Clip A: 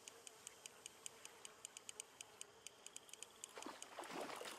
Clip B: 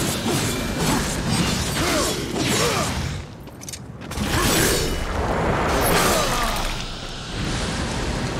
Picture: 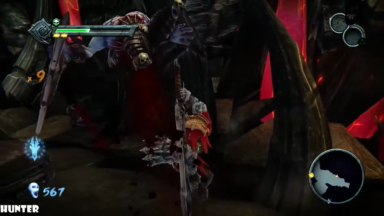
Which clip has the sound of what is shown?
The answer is B